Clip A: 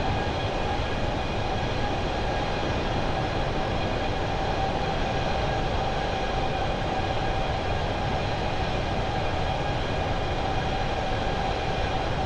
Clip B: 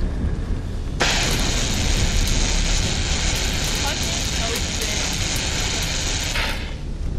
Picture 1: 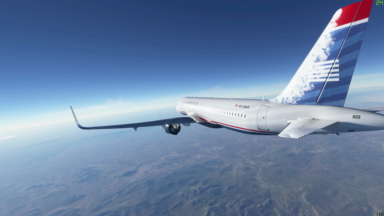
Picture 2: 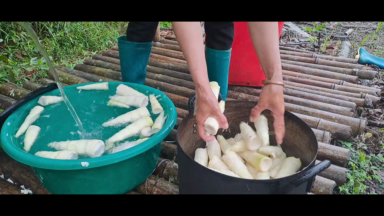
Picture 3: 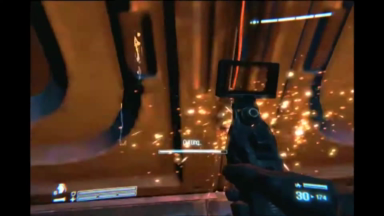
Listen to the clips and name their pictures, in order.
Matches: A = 1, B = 3